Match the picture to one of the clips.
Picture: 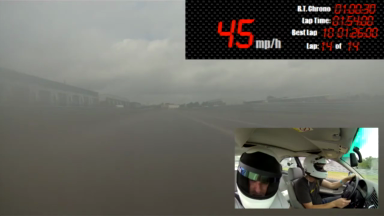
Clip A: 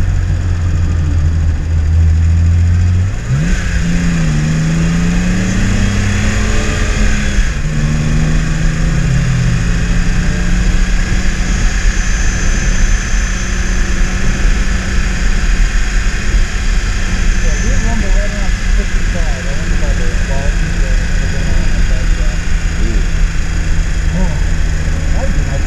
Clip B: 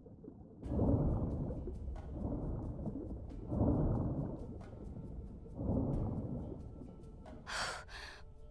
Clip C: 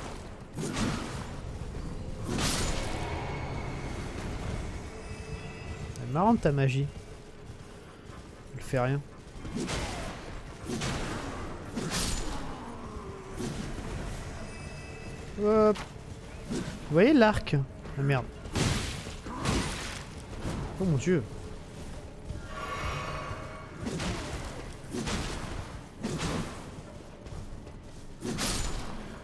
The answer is A